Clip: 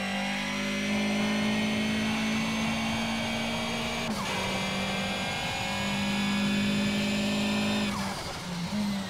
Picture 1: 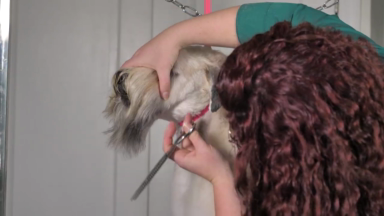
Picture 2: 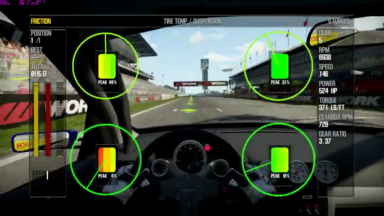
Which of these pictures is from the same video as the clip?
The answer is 2